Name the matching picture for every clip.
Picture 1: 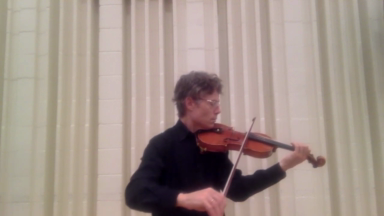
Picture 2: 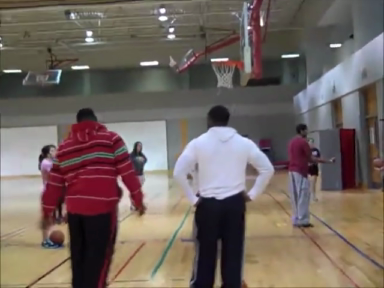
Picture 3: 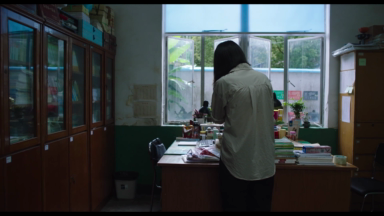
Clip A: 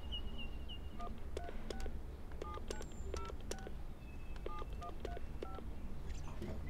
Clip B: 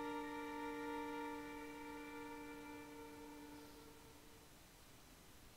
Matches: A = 3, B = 1